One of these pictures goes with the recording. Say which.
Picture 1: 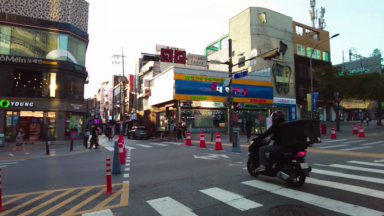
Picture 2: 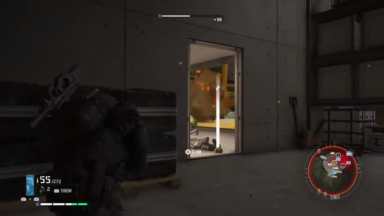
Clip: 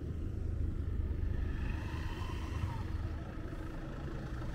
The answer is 1